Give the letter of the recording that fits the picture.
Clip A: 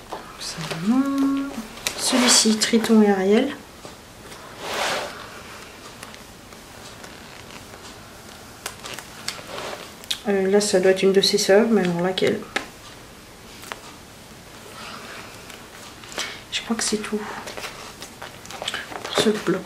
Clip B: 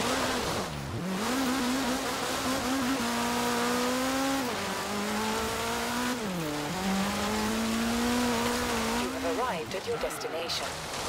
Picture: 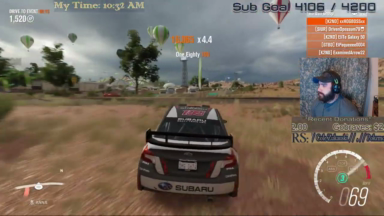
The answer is B